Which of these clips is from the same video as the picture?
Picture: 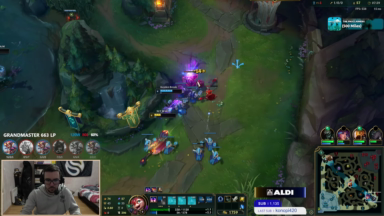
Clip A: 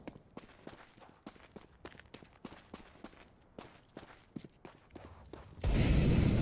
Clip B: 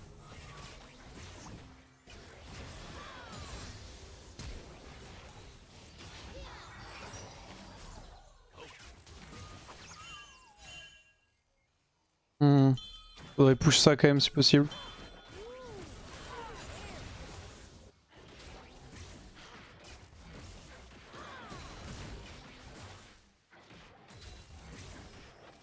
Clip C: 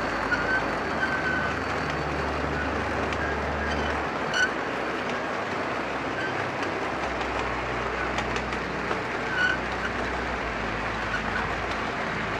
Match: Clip B